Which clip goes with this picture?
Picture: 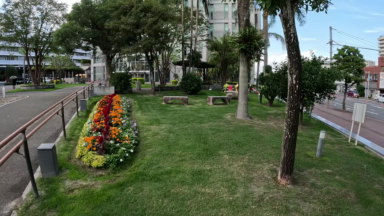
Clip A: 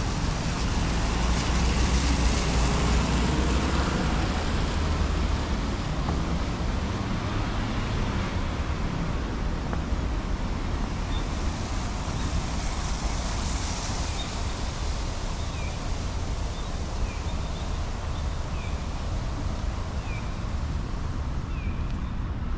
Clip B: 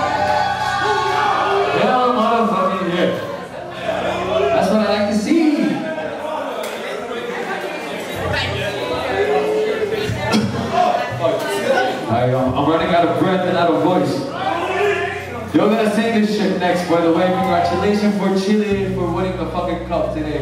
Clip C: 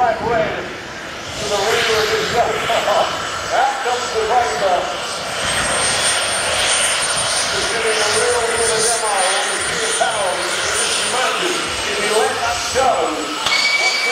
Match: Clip A